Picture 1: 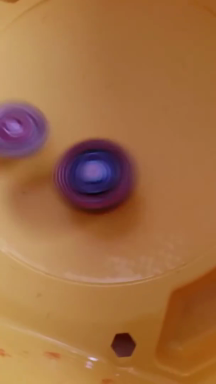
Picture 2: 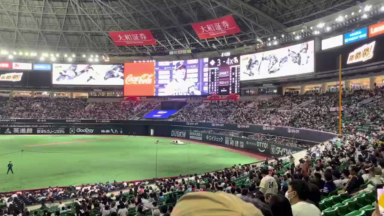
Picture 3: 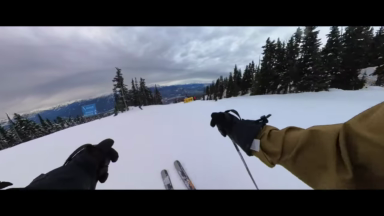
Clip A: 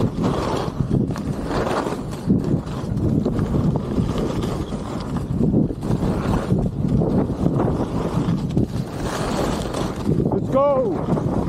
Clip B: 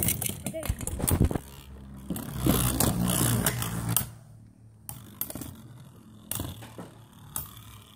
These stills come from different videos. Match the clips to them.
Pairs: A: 3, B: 1